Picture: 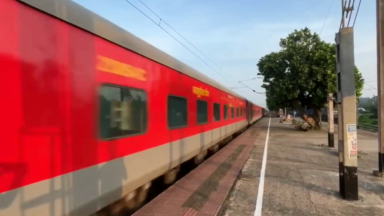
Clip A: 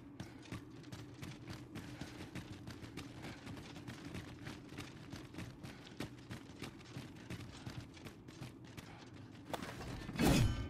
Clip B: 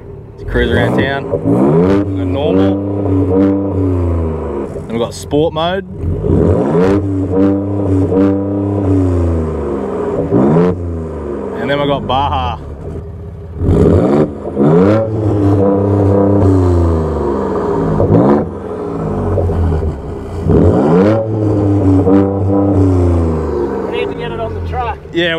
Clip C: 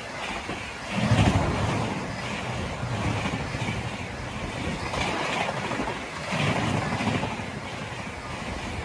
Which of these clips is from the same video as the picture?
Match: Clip C